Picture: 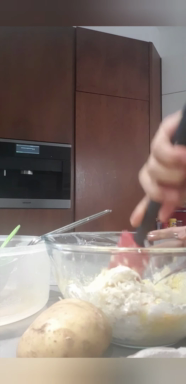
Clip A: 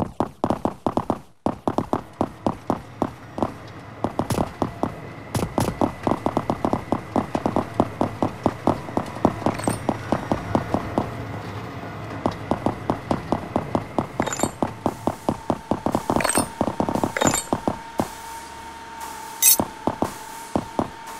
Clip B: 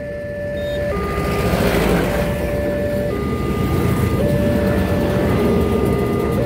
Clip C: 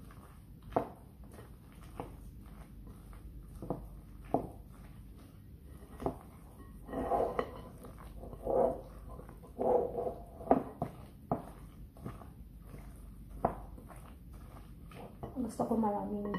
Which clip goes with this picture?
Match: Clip C